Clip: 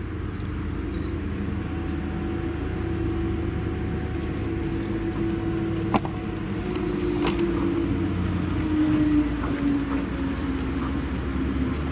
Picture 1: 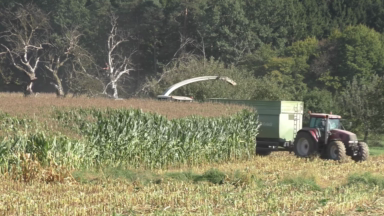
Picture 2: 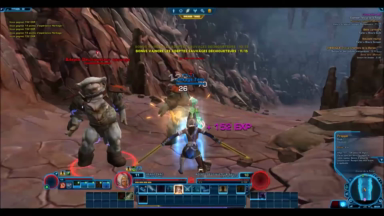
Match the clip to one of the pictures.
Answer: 1